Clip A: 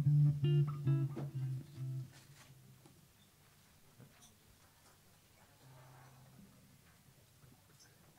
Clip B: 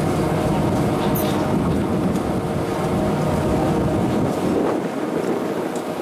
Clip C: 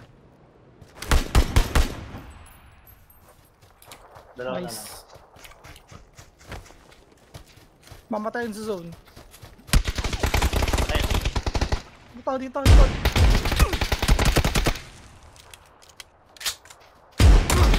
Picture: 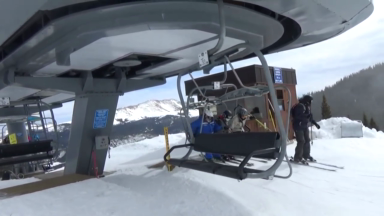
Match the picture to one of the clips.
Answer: B